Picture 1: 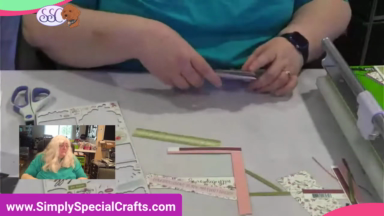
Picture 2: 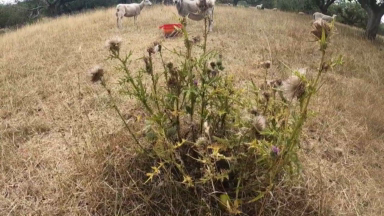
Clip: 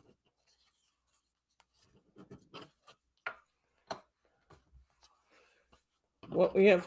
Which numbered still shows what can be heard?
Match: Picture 1